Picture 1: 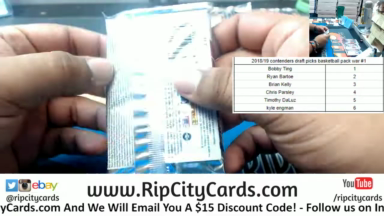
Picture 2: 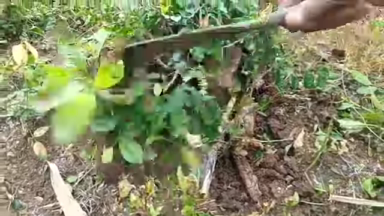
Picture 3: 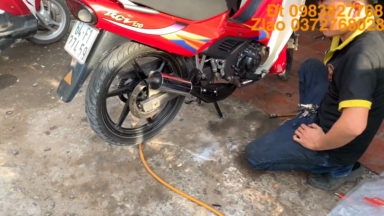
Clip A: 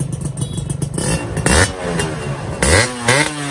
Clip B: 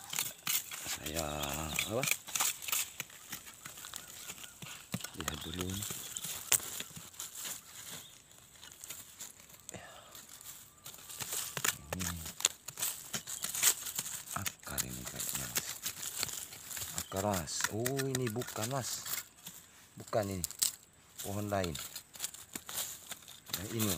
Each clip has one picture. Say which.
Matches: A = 3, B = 2